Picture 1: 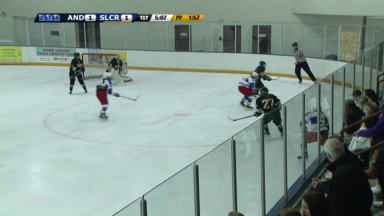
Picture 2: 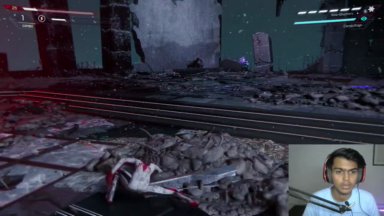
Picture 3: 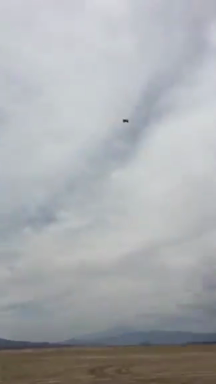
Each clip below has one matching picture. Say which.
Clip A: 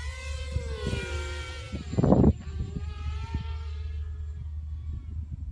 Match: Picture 3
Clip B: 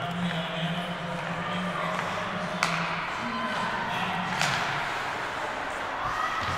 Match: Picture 1